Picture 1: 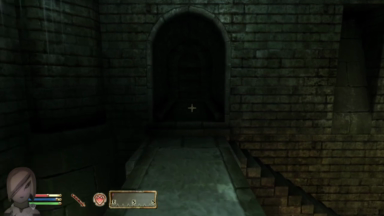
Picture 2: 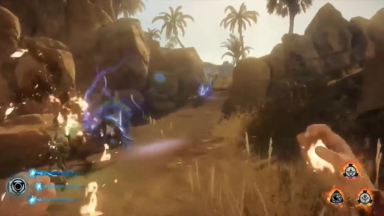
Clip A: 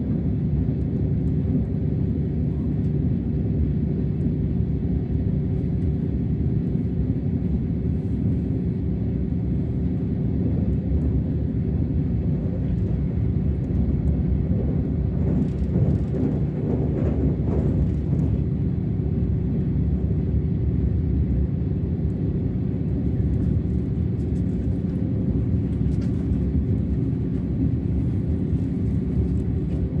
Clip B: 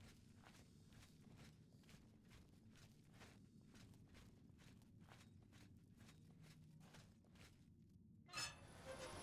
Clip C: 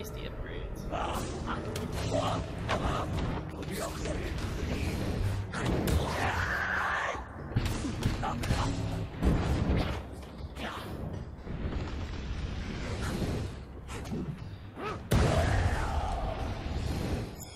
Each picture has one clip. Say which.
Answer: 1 B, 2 C